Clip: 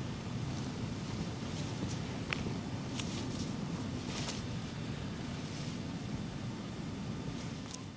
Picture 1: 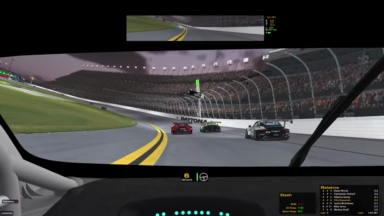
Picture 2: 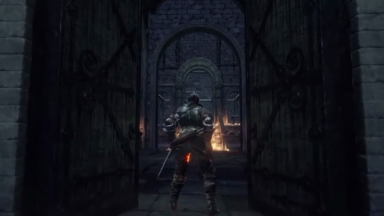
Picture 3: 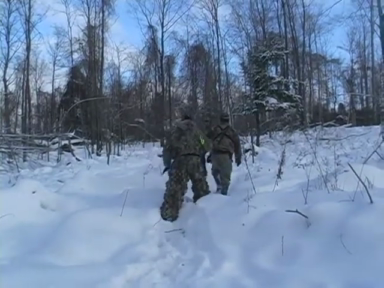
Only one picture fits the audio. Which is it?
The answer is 3